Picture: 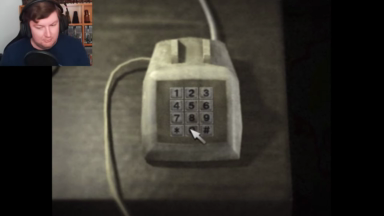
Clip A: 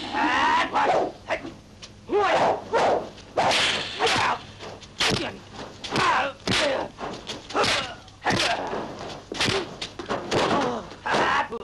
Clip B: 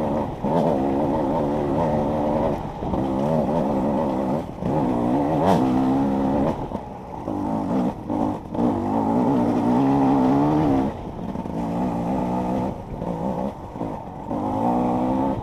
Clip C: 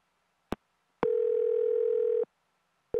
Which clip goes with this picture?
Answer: C